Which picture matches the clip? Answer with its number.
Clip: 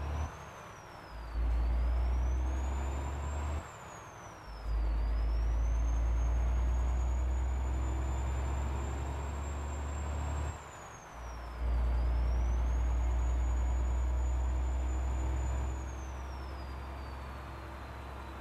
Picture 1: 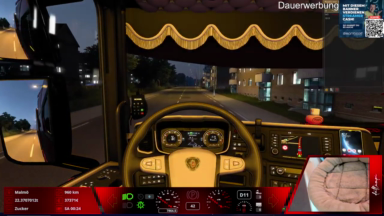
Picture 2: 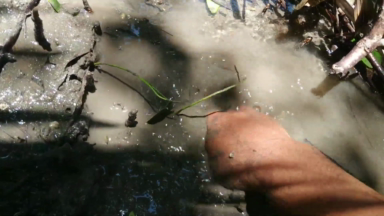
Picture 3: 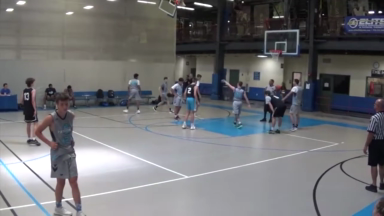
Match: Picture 1